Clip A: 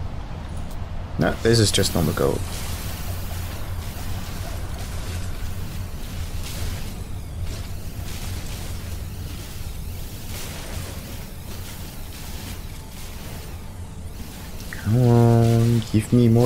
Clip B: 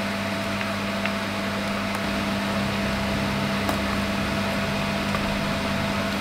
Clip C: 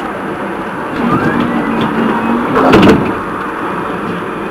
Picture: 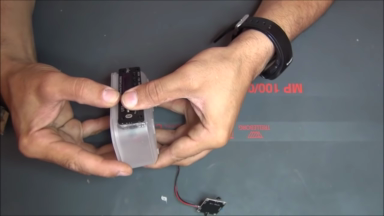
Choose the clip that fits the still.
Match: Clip B